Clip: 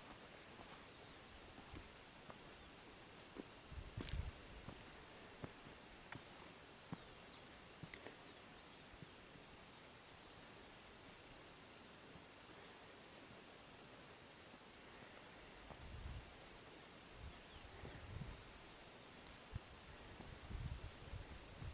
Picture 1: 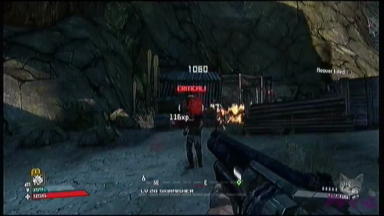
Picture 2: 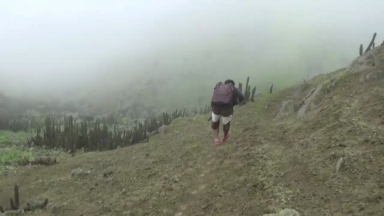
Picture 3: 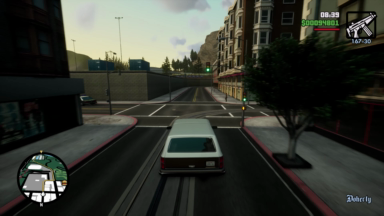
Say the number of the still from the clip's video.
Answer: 2